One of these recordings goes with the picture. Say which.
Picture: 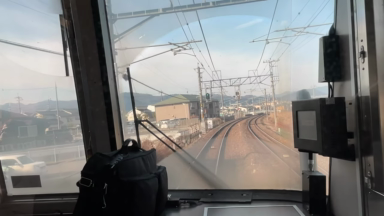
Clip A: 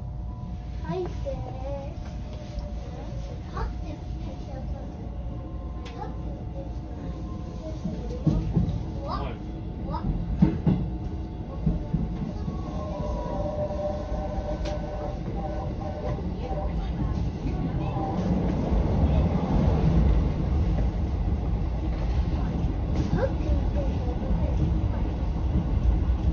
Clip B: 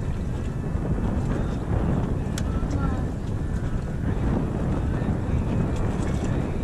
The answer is A